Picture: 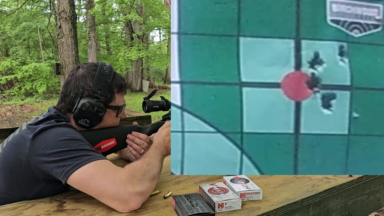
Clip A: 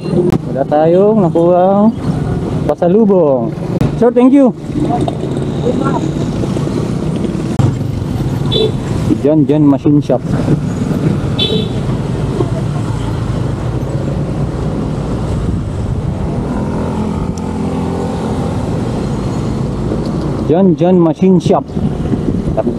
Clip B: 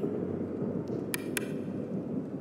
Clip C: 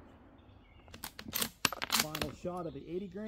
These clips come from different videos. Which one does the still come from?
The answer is C